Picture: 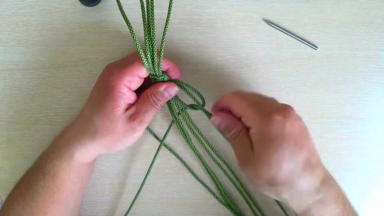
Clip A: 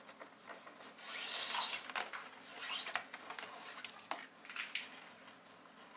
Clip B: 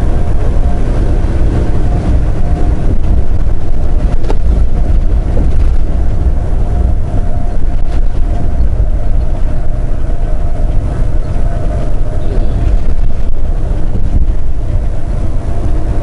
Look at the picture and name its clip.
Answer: A